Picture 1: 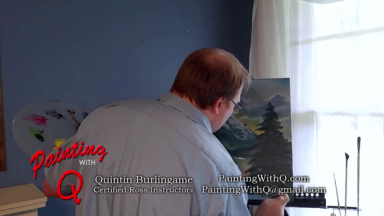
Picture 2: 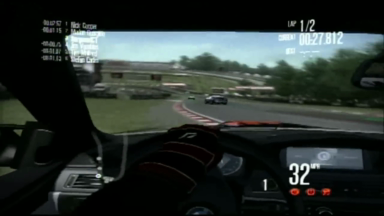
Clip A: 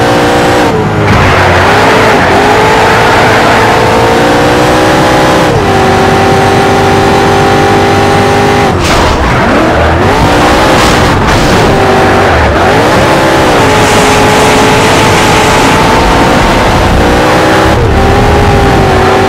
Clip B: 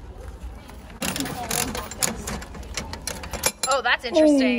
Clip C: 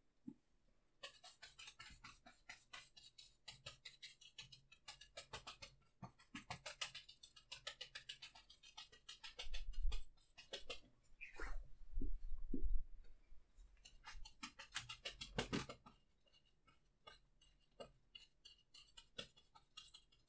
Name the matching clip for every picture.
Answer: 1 C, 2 A